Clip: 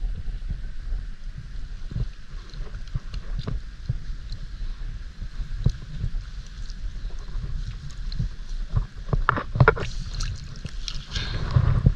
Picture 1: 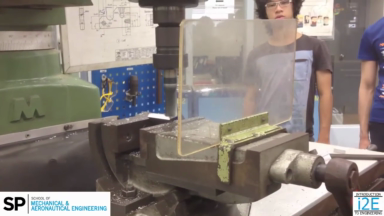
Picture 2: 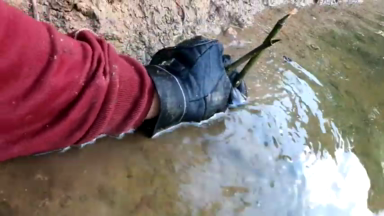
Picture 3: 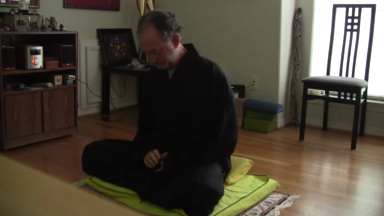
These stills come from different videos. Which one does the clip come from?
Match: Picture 2